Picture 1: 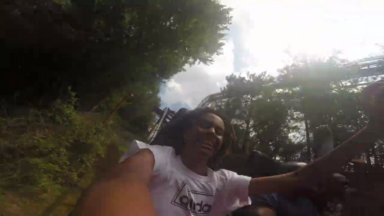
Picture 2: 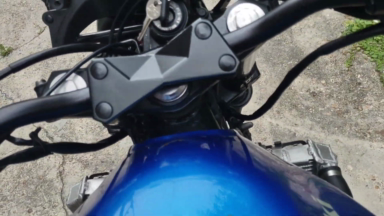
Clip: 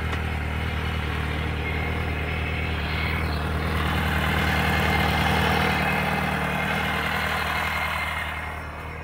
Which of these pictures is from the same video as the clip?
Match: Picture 2